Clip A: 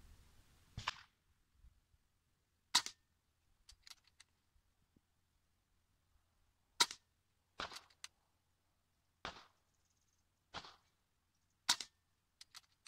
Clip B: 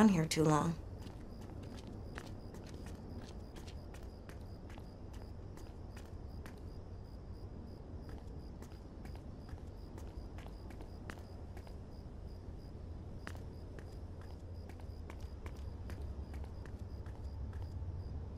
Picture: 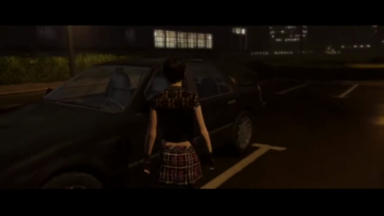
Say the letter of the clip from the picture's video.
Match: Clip B